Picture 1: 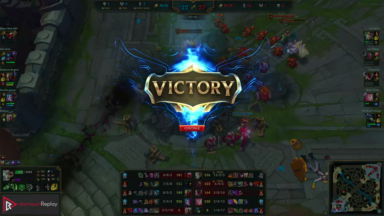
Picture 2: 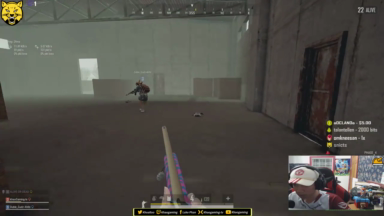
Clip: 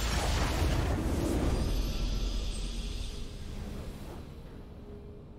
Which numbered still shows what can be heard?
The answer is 1